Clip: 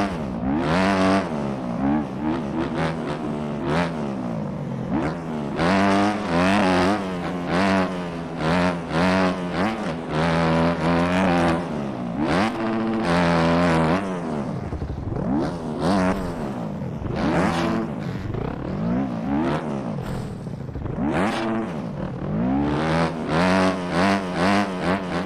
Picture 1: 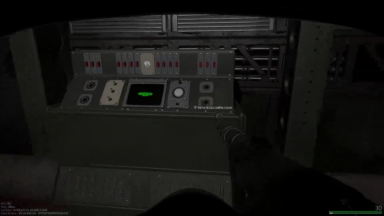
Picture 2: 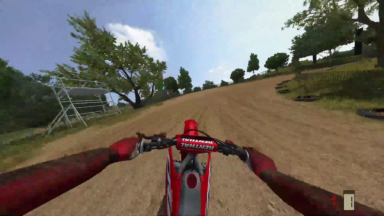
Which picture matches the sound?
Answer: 2